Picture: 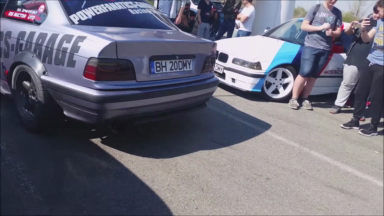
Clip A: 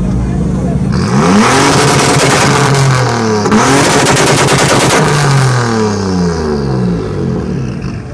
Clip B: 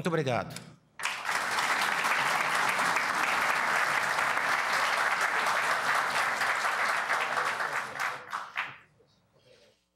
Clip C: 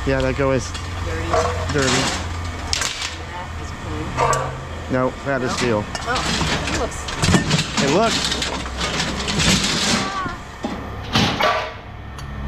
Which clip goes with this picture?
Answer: A